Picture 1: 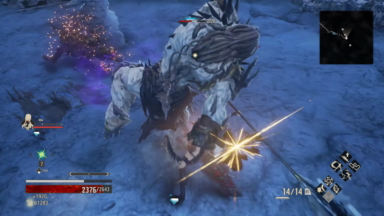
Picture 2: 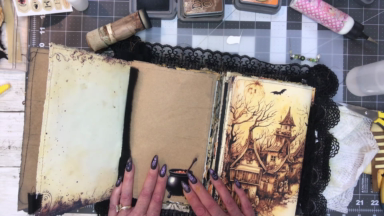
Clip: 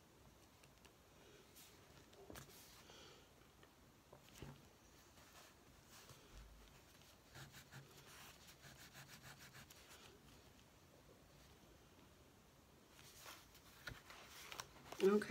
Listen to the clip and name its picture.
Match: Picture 2